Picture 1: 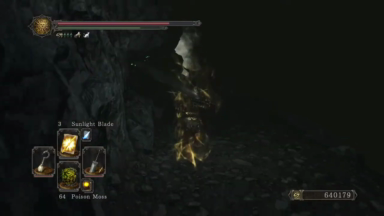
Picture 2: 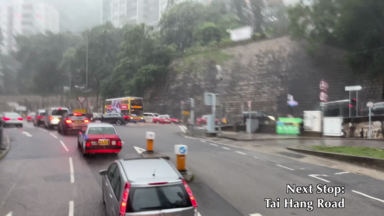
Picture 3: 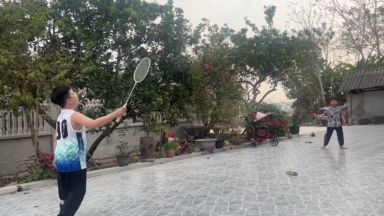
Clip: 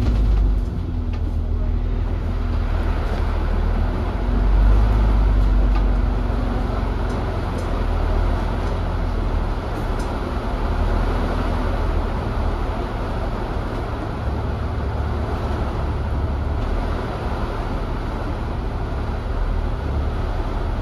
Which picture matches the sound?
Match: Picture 2